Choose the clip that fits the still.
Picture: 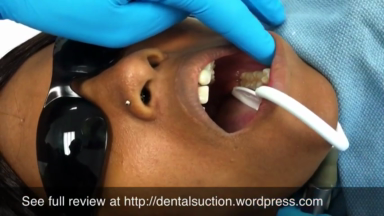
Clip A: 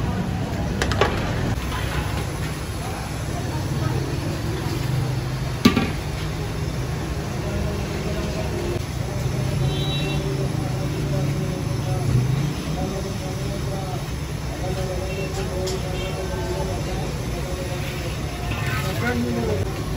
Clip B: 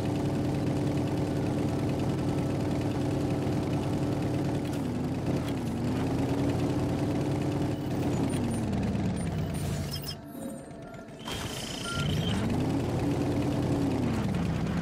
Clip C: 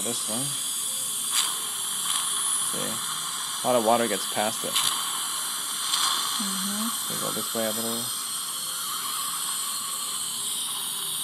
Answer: C